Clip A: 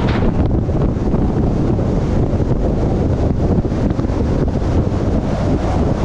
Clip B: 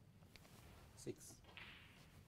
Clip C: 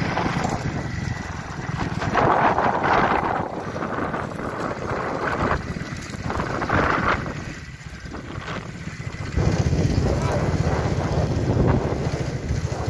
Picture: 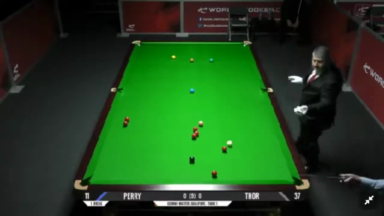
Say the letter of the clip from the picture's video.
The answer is B